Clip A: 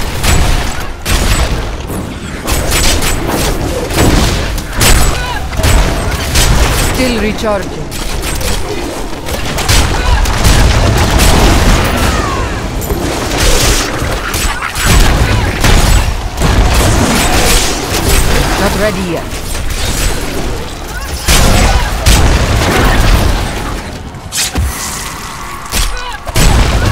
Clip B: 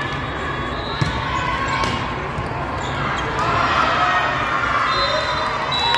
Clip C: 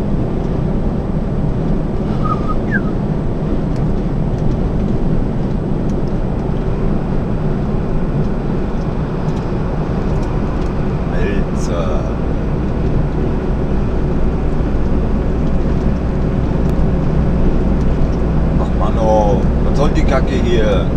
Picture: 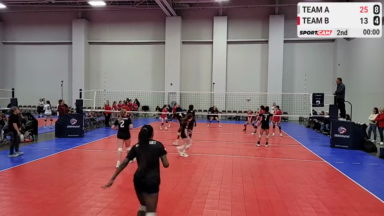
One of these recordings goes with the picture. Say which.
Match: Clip B